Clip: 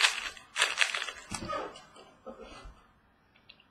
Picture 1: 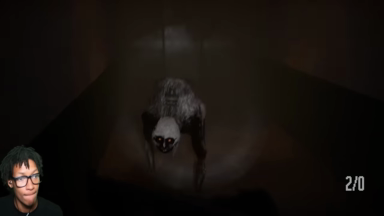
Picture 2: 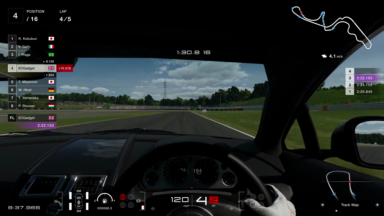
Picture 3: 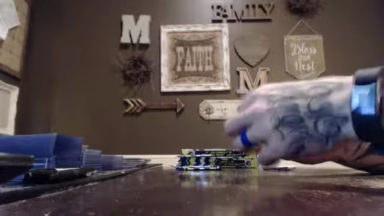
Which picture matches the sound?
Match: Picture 3